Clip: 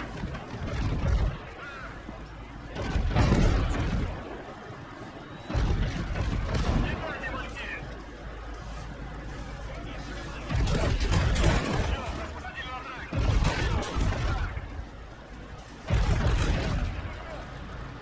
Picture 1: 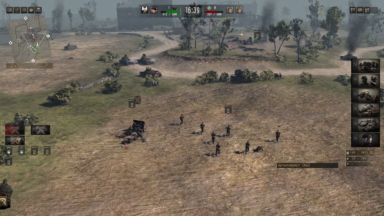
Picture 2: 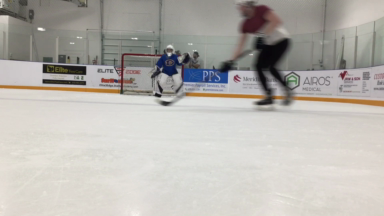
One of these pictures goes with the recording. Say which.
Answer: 1